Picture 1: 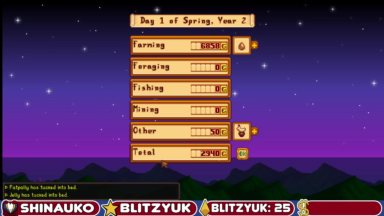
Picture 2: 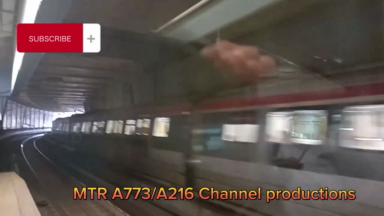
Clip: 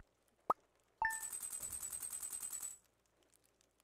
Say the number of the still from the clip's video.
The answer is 1